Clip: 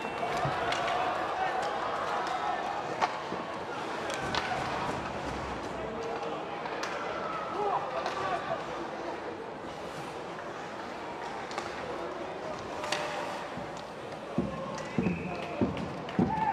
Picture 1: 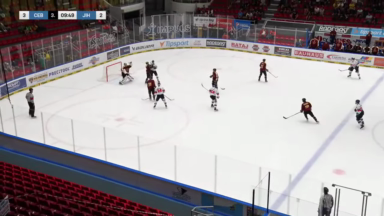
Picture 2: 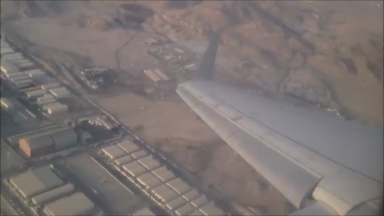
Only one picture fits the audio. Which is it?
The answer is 1